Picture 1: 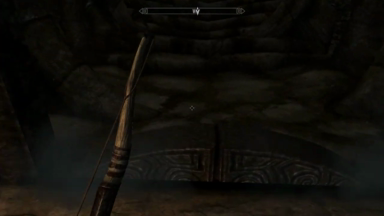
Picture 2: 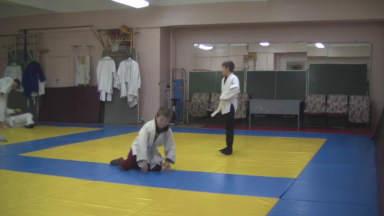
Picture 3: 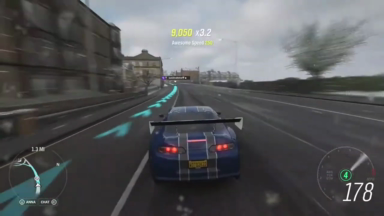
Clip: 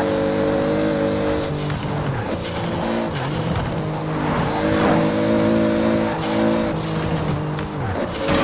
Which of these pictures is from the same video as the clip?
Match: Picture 3